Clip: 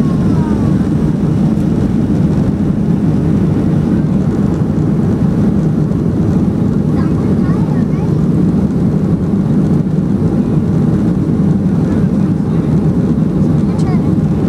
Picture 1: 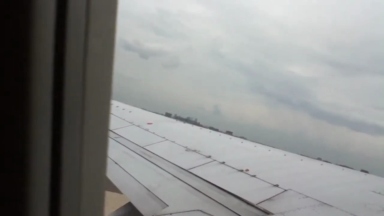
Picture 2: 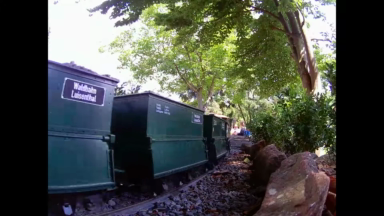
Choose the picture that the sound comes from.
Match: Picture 1